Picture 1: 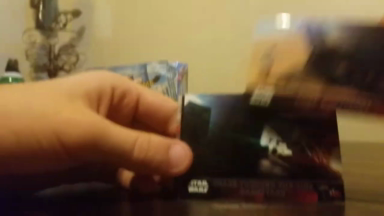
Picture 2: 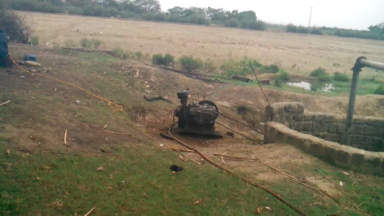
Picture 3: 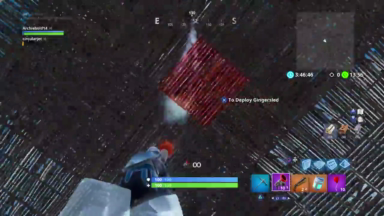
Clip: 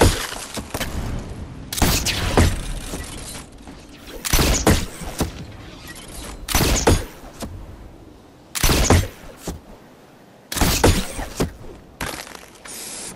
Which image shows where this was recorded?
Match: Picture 3